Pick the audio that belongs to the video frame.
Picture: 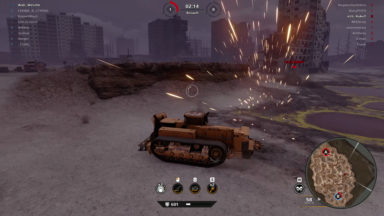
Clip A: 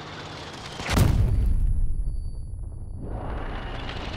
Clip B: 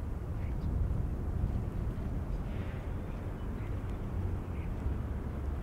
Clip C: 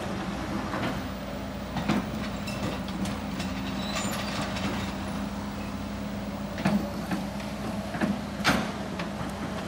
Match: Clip A